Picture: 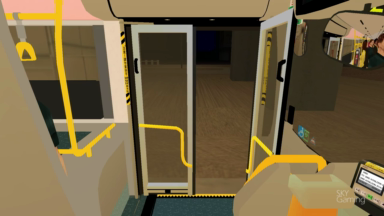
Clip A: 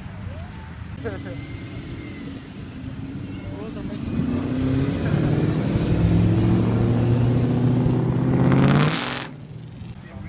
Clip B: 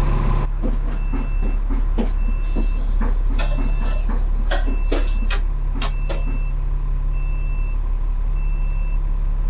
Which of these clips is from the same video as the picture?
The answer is B